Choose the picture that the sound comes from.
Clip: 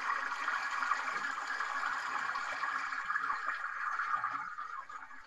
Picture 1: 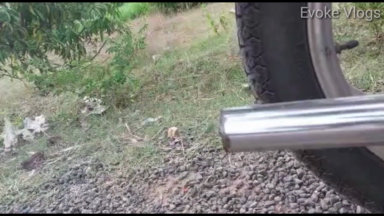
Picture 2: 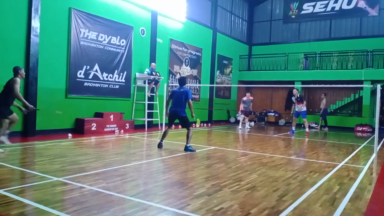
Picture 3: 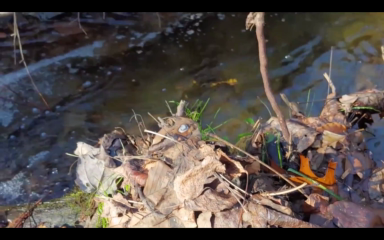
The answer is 3